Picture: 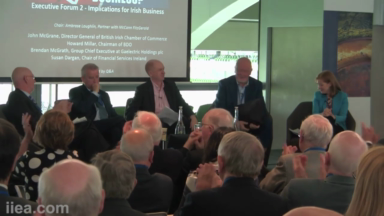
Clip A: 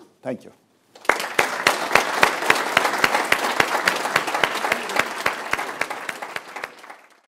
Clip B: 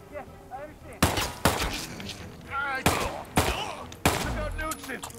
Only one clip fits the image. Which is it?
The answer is A